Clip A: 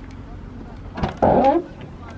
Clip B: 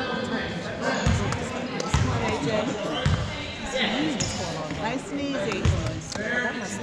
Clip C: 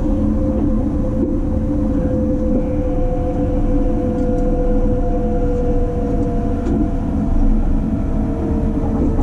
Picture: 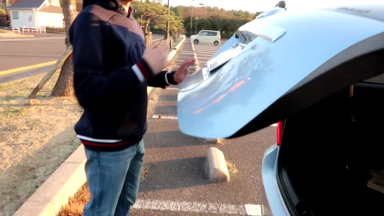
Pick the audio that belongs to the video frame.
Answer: A